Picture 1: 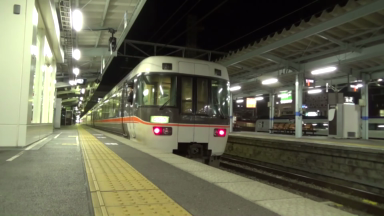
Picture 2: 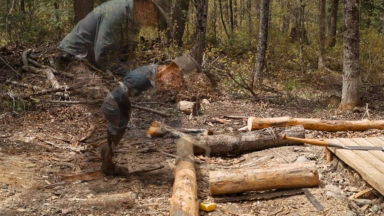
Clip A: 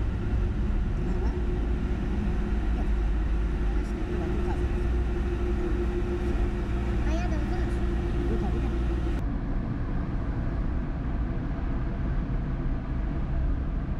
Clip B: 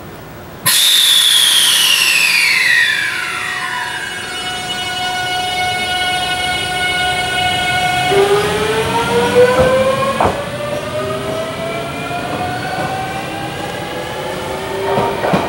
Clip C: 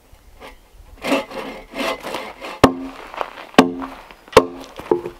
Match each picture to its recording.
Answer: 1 B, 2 C